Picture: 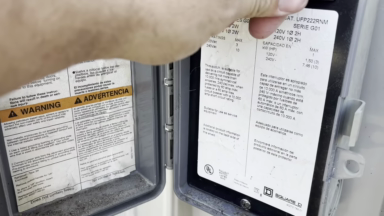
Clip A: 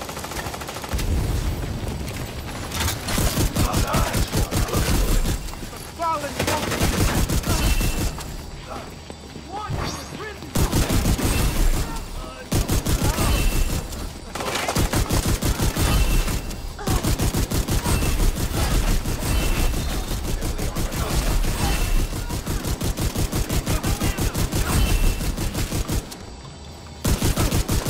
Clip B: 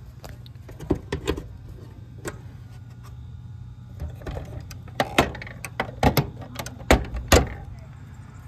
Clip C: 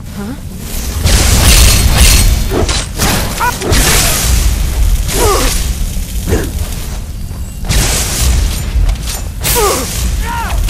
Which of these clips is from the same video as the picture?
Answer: B